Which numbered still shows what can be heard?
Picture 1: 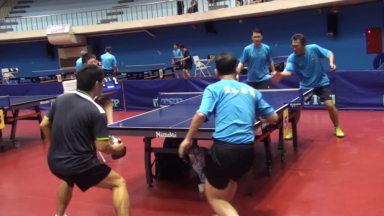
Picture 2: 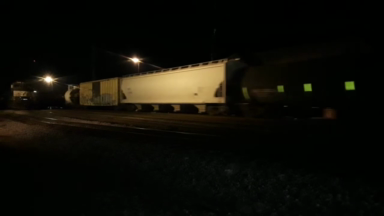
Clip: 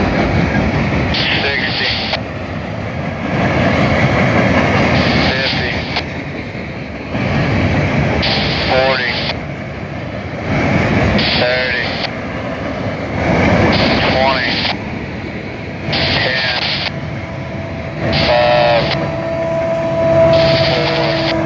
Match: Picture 2